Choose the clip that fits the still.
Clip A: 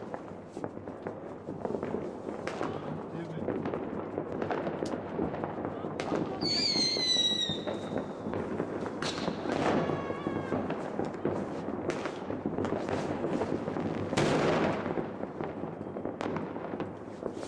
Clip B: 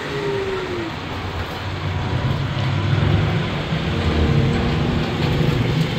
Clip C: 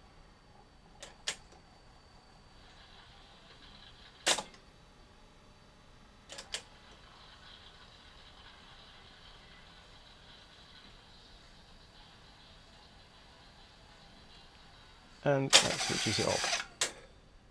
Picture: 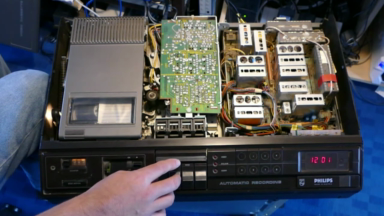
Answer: C